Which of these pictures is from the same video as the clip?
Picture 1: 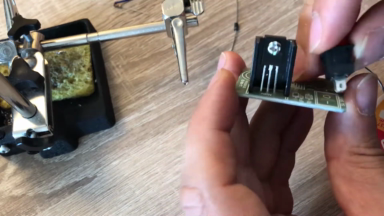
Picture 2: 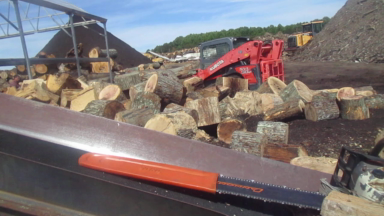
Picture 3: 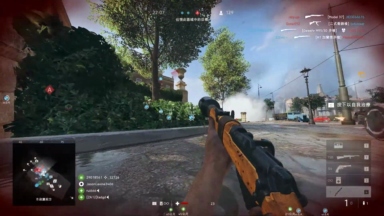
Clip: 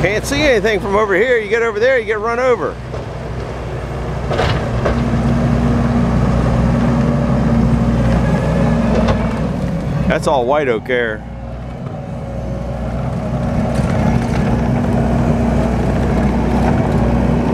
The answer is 2